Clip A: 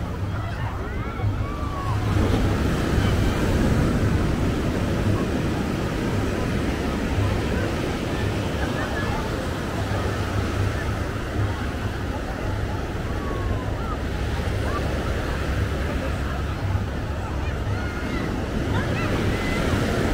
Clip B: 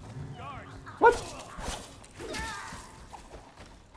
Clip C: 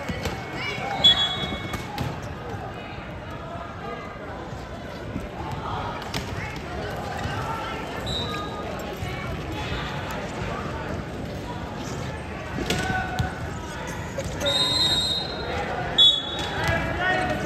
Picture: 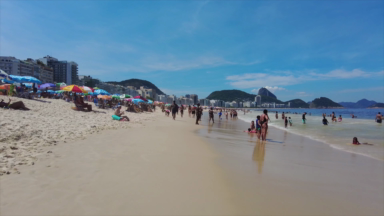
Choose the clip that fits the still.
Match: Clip A